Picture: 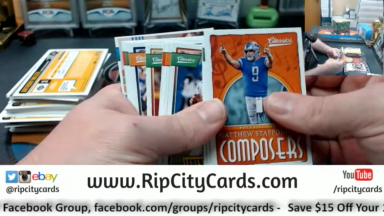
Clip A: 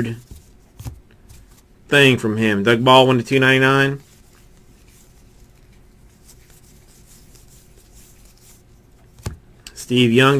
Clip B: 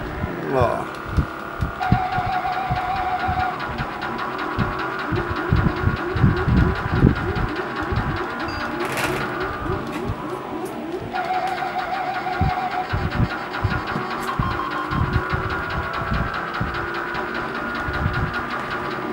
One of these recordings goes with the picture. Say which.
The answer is A